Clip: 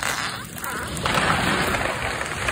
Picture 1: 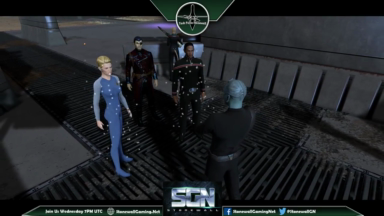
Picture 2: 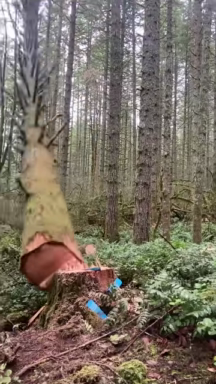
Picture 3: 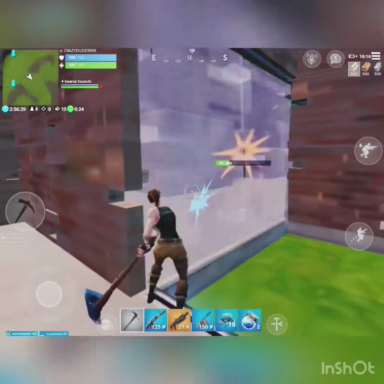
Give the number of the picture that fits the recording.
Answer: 2